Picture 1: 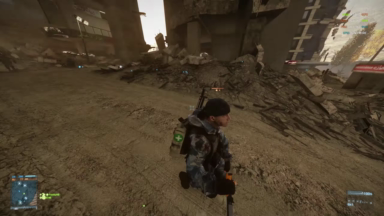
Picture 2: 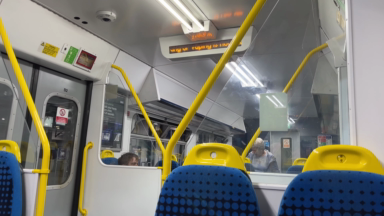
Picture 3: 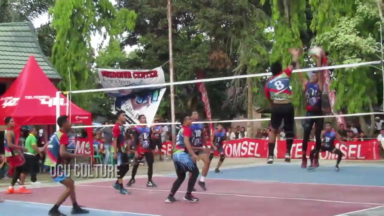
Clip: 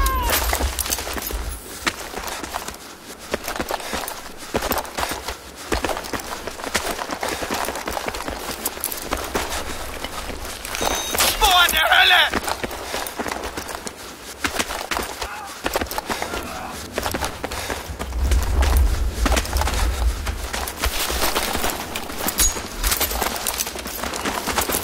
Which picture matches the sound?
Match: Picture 1